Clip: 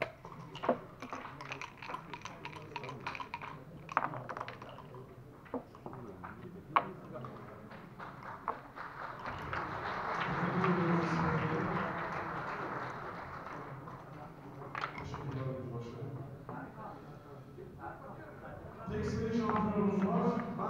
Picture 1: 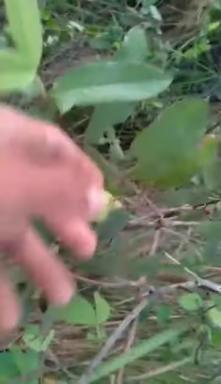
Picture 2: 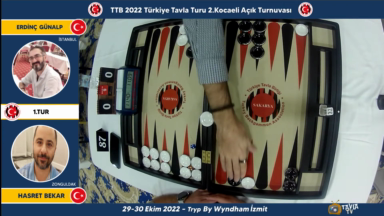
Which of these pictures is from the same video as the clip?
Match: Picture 2